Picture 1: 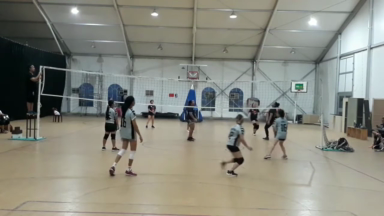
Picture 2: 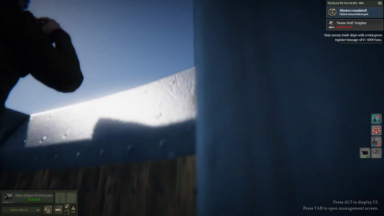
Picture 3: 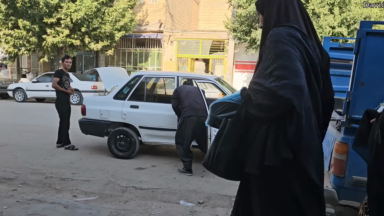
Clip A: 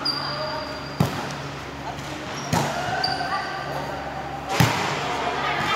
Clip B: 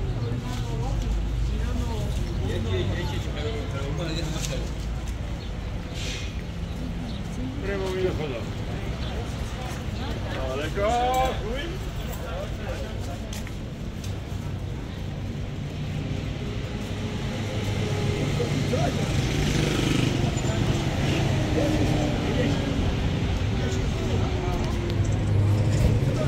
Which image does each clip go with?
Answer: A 1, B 3